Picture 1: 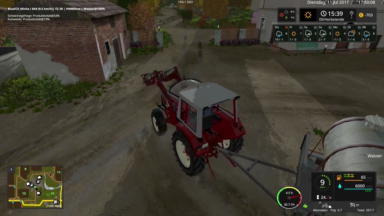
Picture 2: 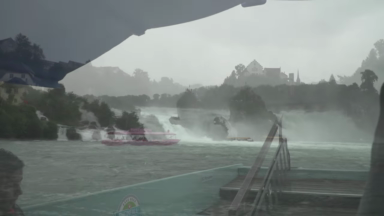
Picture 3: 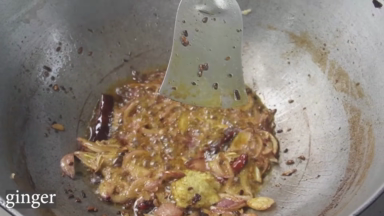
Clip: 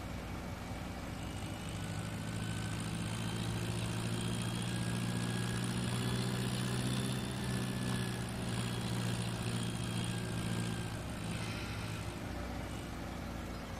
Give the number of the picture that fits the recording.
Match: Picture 1